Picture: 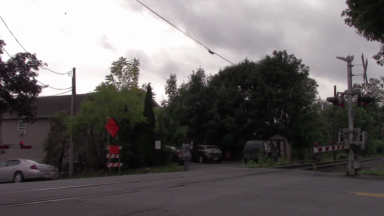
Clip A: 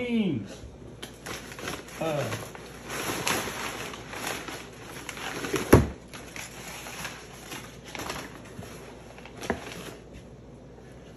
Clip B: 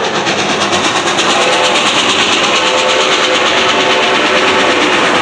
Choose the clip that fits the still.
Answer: B